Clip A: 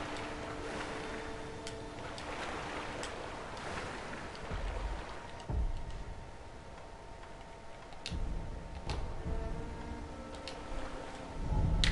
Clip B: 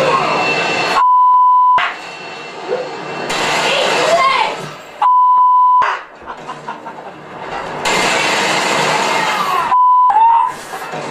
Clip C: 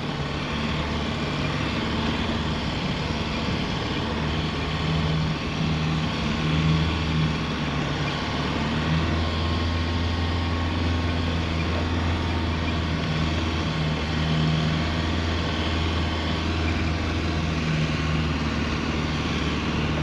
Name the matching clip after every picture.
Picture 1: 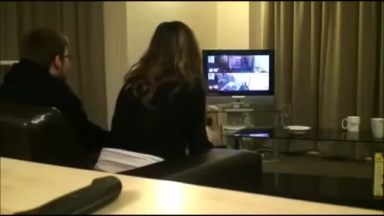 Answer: B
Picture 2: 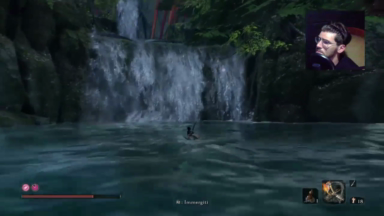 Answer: A